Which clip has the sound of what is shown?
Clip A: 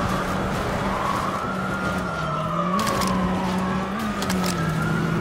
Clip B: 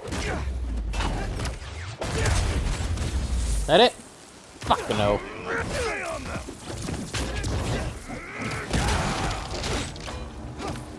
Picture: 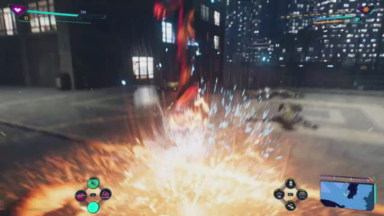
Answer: B